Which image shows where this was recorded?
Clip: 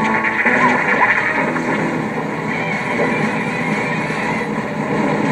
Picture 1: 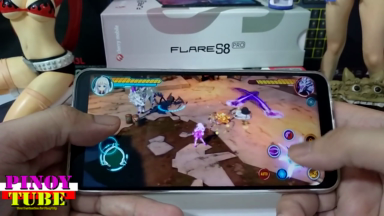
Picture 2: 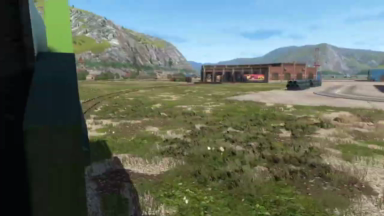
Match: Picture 1